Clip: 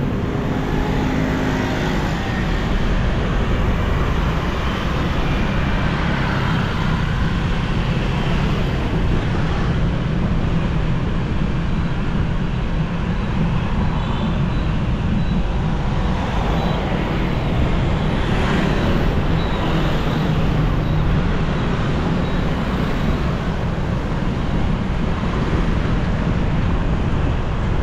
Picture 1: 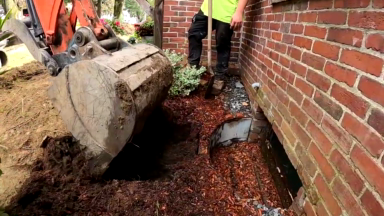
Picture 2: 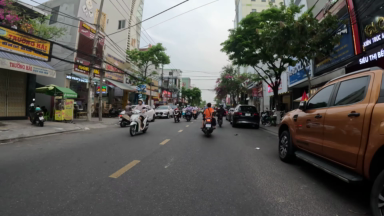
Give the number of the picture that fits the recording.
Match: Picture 2